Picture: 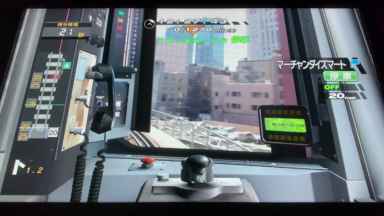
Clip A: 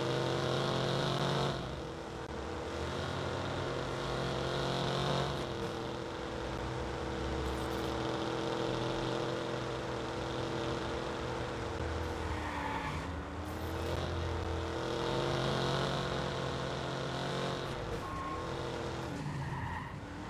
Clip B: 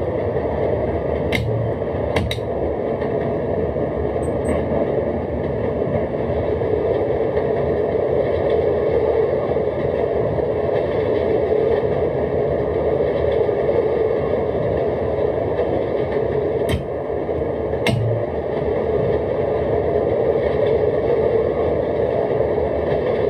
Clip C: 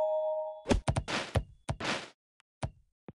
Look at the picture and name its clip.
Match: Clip B